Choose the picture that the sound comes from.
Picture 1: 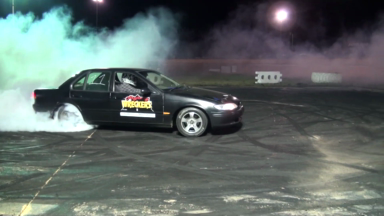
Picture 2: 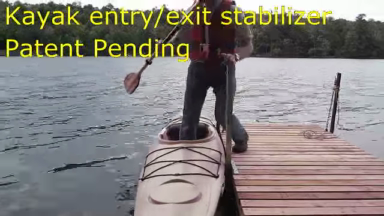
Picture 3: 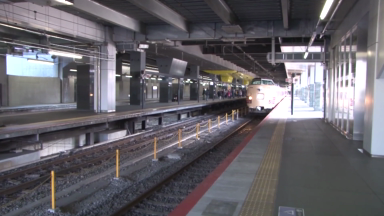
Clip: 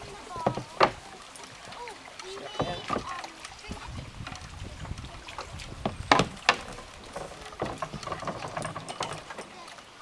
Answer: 2